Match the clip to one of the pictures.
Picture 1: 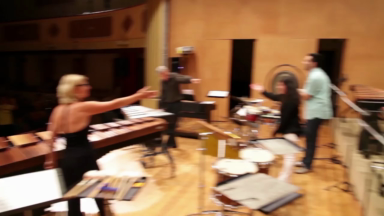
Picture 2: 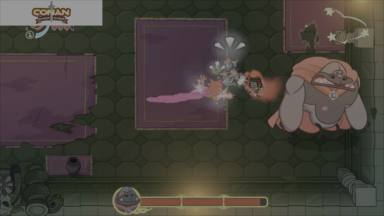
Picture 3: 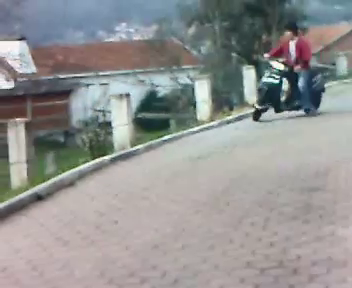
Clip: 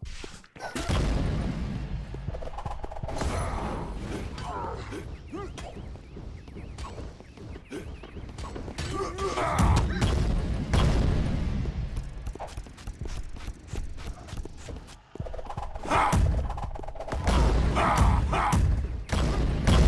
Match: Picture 2